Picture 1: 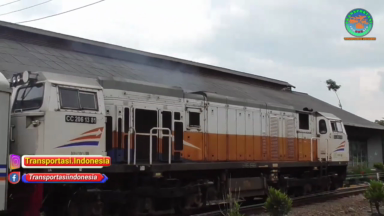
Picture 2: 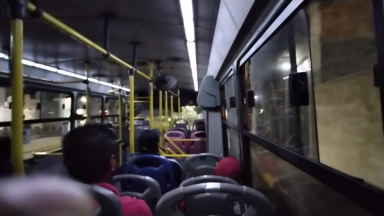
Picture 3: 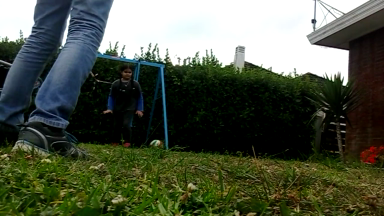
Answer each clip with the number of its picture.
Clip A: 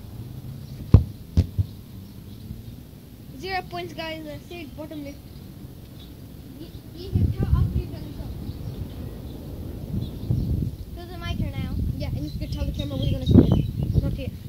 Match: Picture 3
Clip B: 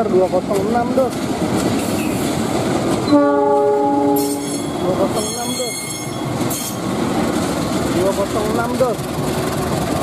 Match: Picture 1